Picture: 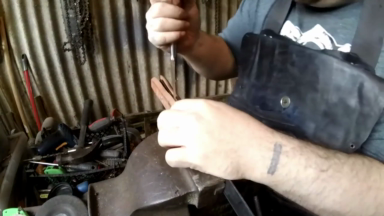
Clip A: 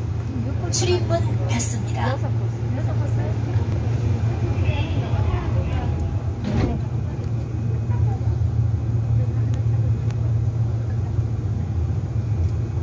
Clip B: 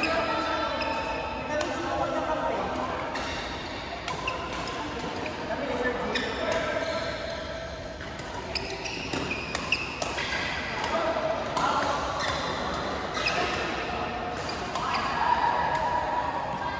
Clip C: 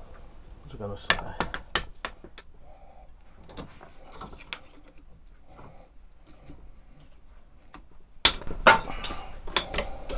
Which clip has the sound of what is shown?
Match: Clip C